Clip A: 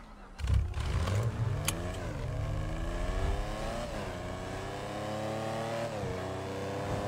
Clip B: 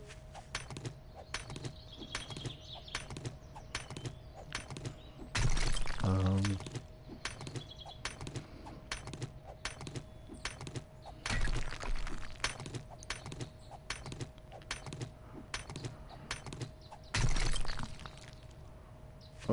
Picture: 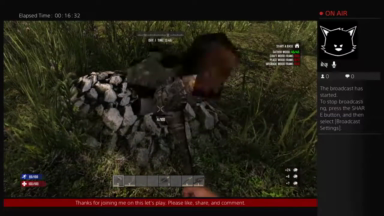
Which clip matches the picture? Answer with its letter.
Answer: B